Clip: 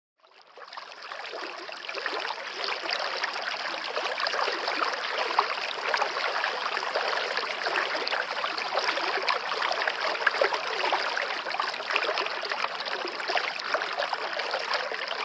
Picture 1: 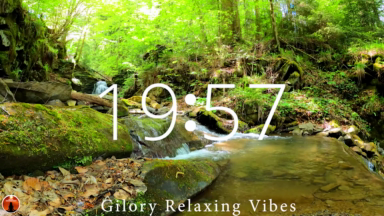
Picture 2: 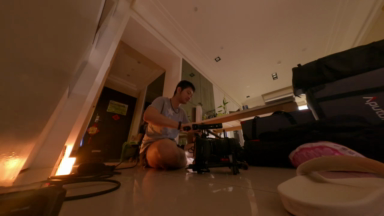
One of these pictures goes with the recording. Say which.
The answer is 1